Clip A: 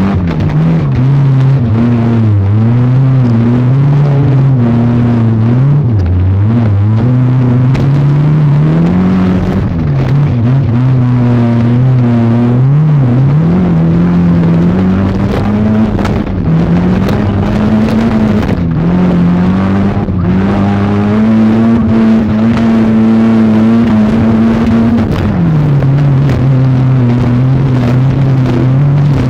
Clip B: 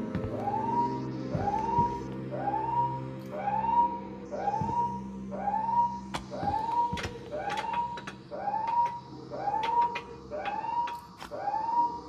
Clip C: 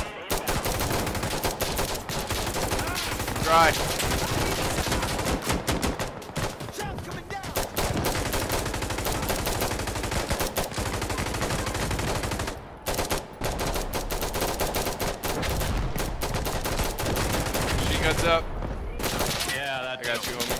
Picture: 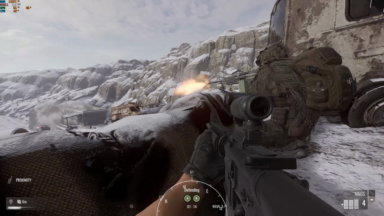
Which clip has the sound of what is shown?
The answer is C